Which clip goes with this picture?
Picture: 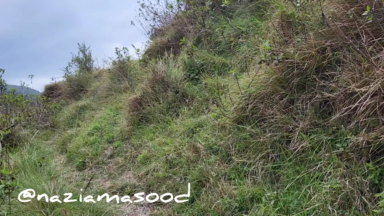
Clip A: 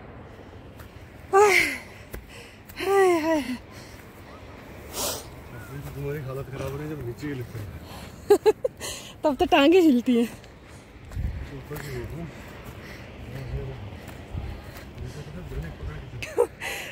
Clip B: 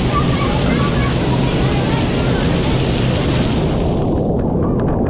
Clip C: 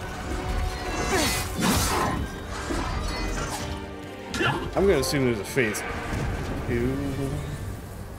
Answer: A